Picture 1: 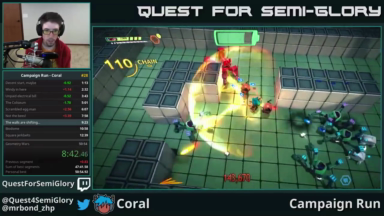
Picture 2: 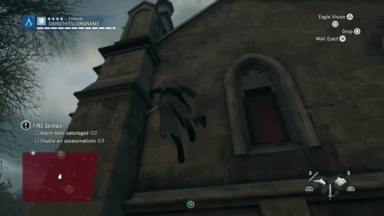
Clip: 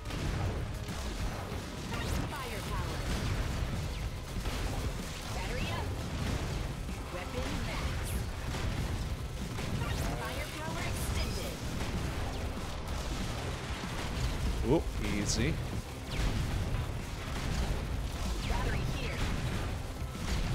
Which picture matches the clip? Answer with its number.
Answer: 1